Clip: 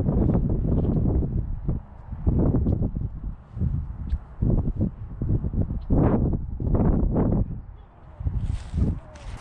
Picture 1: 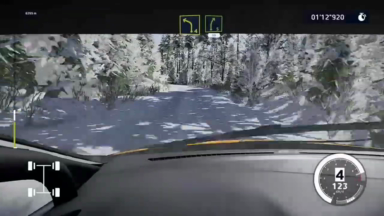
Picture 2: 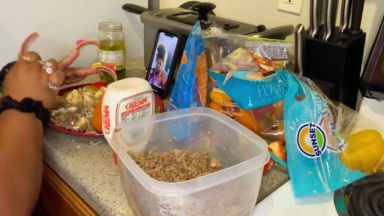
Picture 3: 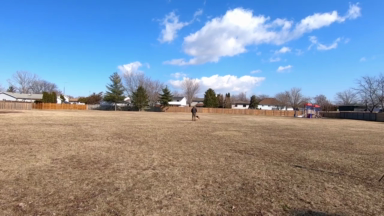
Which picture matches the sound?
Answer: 3